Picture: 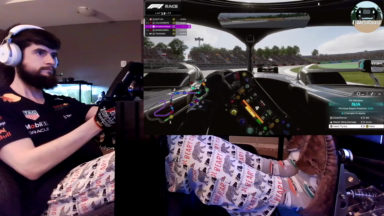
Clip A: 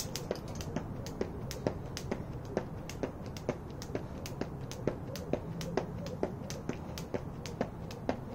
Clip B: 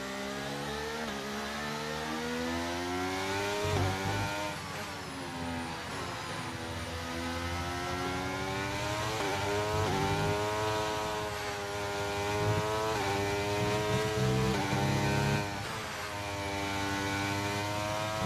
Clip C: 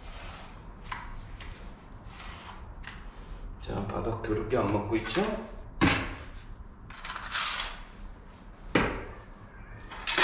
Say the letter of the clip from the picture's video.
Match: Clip B